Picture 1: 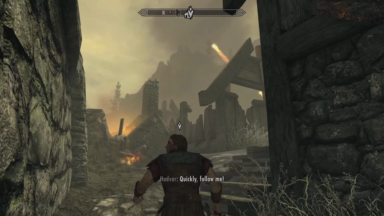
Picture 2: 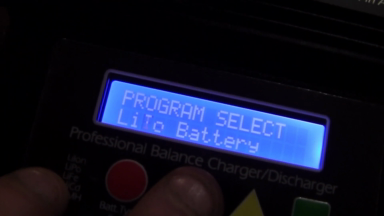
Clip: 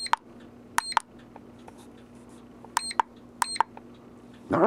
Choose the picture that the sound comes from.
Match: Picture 2